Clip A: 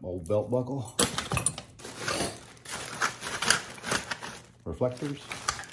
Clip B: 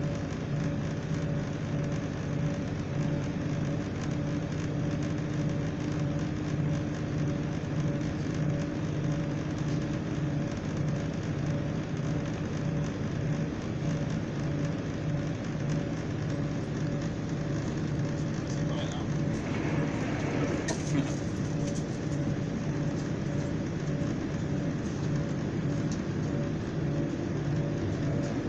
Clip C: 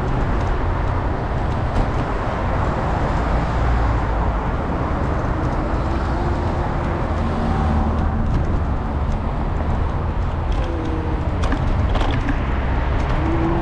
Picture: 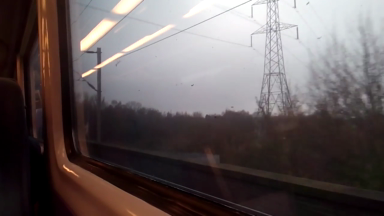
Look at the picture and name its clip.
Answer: B